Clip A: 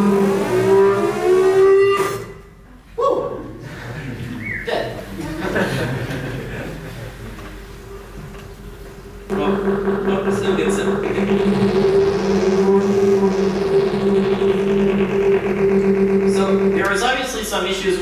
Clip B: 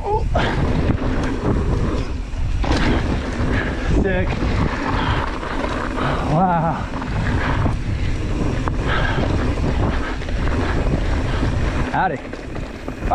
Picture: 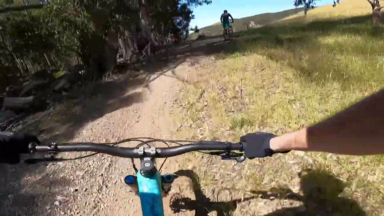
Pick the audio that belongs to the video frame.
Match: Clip B